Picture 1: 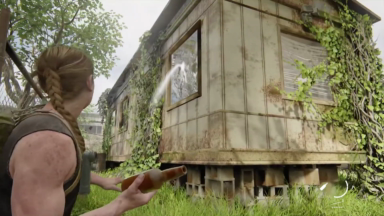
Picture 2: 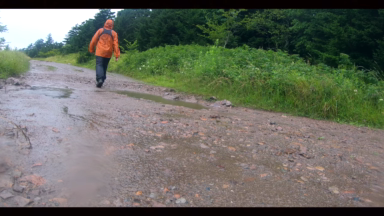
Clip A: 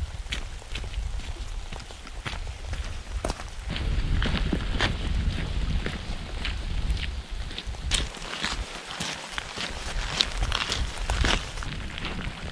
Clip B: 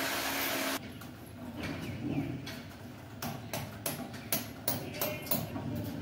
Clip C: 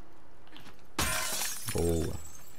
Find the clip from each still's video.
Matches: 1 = C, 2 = A